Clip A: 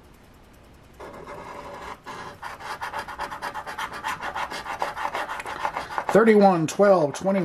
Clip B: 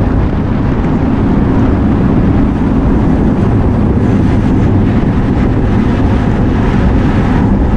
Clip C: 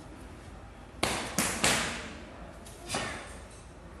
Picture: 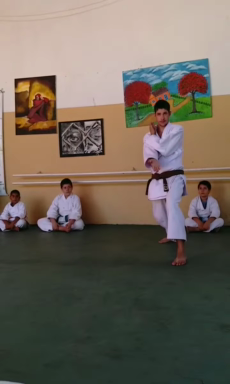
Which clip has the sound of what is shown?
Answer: C